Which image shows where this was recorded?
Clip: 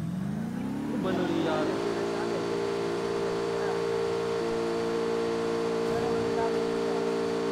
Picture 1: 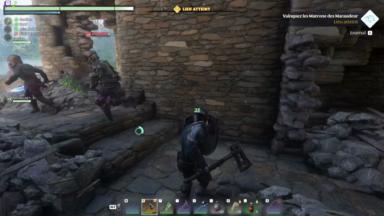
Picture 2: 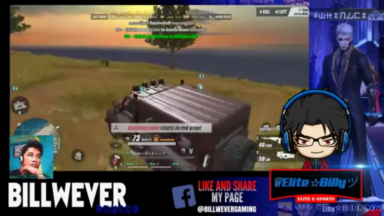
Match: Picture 2